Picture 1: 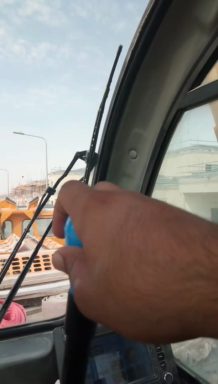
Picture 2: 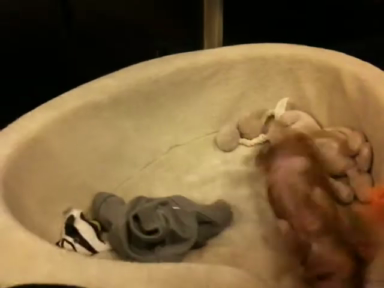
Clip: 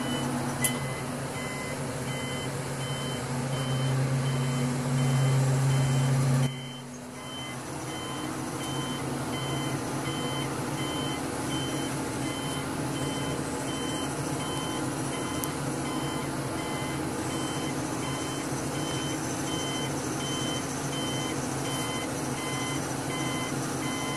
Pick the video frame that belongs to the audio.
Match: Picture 1